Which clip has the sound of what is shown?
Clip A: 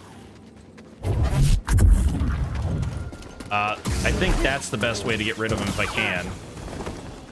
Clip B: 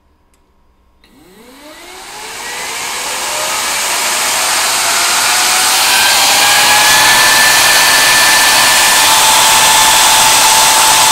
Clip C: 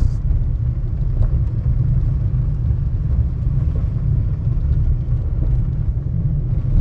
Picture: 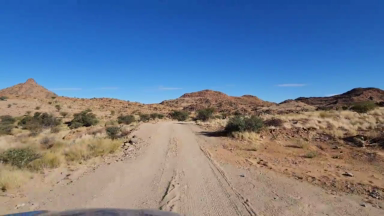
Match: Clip C